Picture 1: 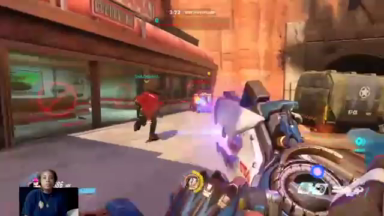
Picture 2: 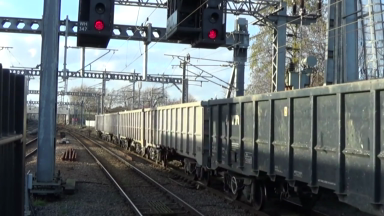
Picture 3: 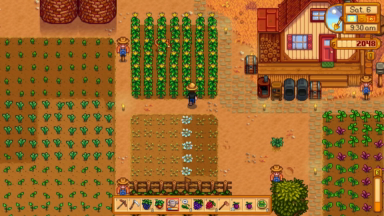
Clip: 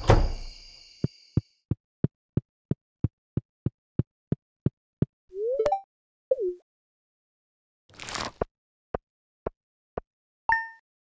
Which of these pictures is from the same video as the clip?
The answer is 3